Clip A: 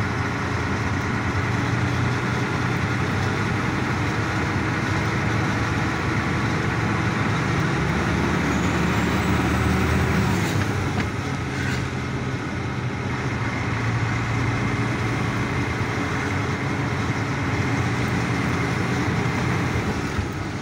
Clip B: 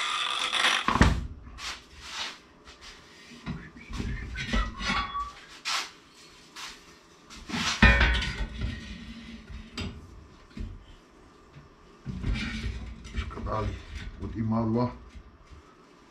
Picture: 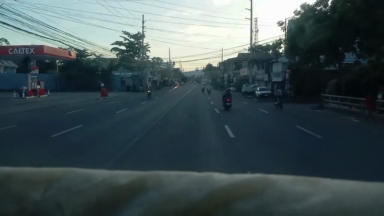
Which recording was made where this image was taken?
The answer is A